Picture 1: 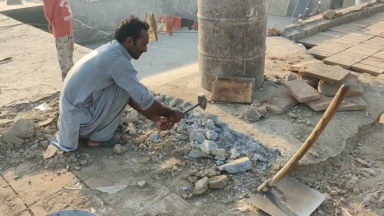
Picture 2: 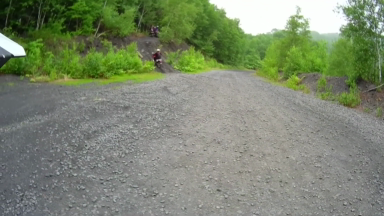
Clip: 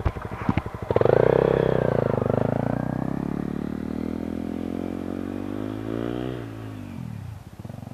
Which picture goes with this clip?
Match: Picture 2